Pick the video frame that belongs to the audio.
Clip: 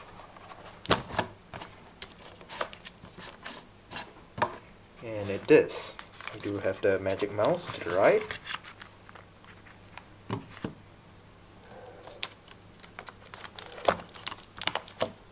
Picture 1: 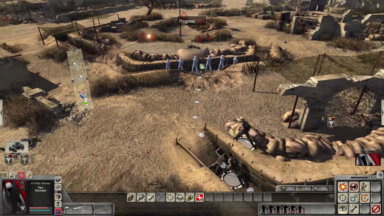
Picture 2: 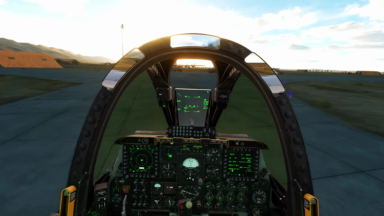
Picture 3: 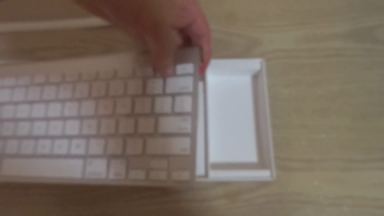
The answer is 3